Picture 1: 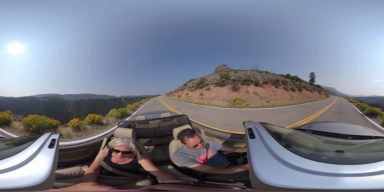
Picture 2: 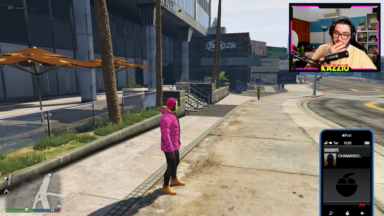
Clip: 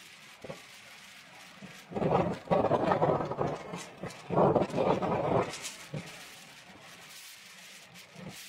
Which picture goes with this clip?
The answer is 1